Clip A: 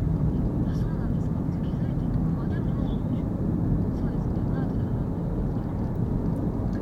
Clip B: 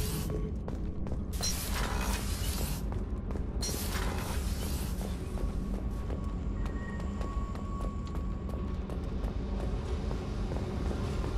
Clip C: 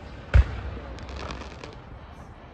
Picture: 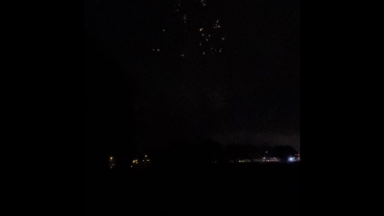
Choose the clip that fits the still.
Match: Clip C